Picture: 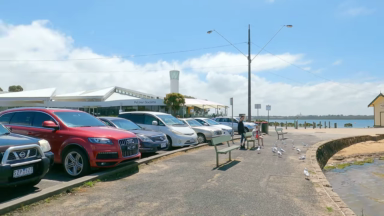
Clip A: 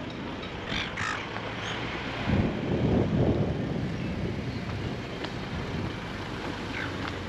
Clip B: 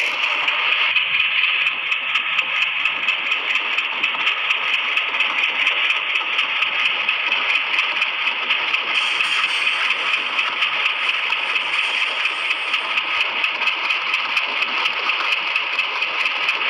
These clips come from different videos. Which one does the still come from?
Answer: A